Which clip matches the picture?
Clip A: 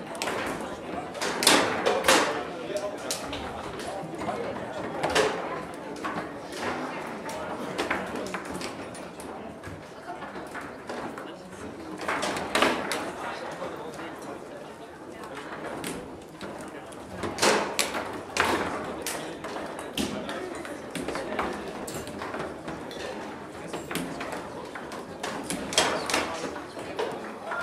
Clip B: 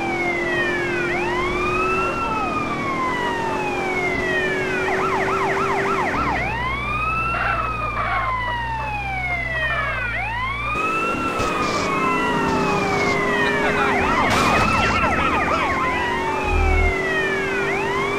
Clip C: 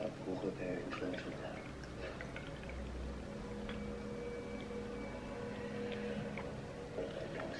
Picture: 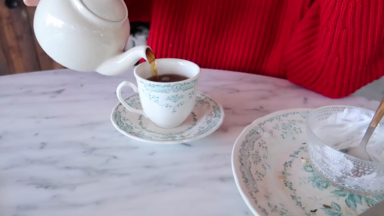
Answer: C